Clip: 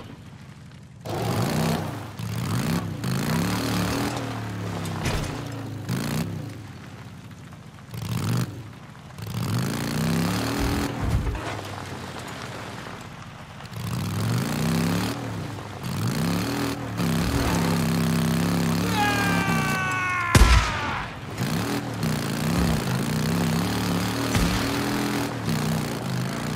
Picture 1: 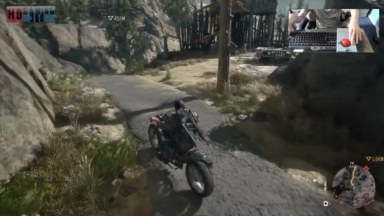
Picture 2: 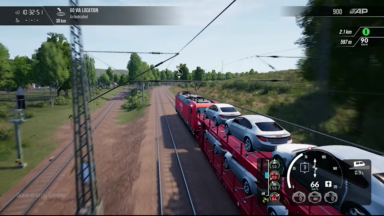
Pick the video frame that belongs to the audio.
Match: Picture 1